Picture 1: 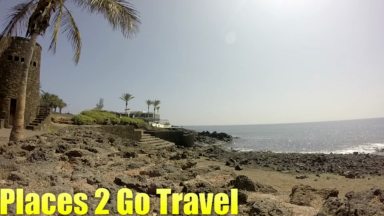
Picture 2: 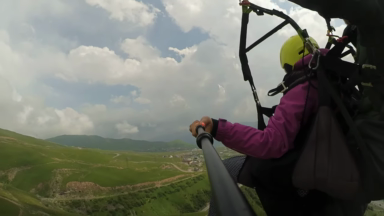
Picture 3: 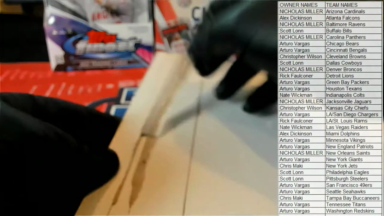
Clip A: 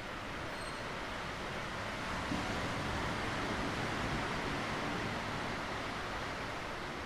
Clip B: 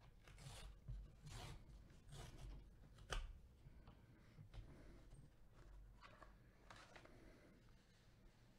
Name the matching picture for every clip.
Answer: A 1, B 3